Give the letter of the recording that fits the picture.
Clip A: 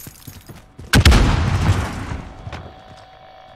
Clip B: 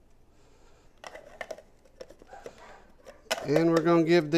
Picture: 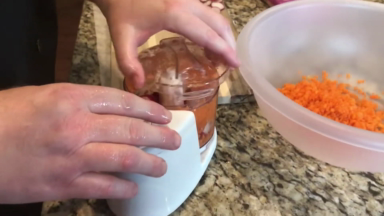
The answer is B